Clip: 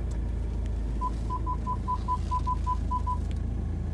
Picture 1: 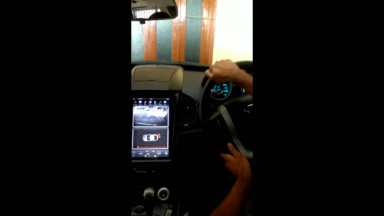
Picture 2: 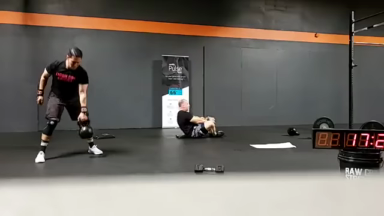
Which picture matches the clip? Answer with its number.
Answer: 1